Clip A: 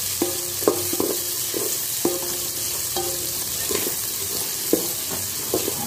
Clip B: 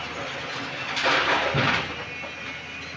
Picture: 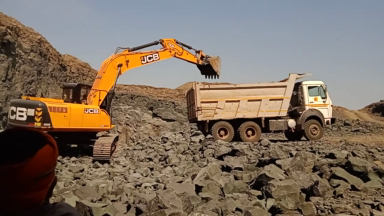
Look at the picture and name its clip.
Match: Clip B